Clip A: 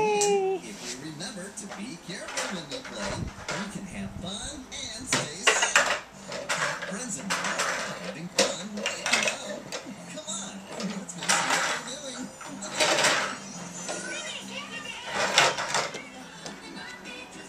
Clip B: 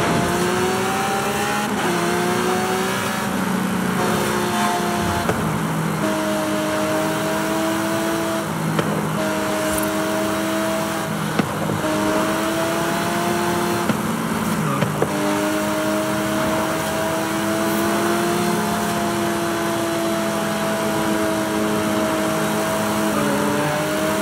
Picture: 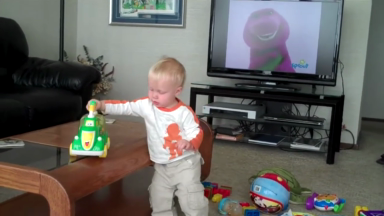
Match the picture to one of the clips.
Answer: A